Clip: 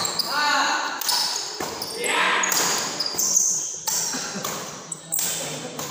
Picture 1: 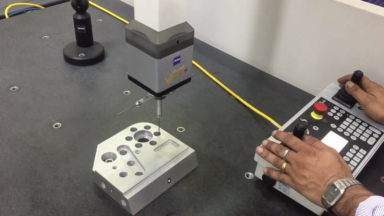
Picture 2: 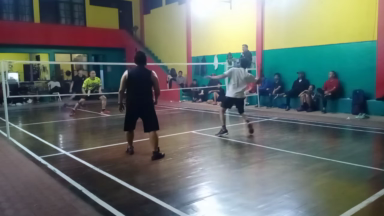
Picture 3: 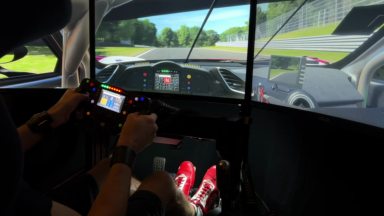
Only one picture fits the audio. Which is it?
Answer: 2